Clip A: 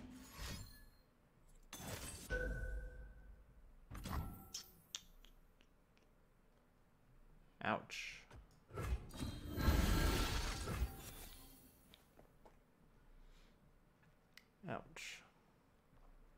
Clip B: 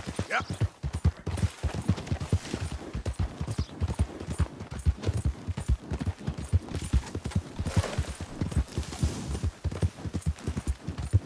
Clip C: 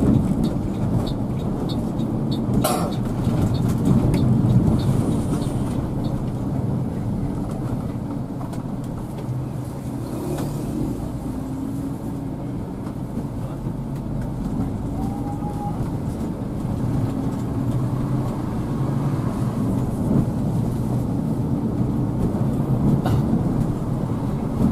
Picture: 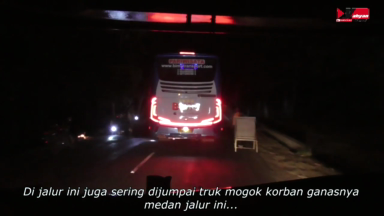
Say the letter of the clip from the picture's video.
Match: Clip C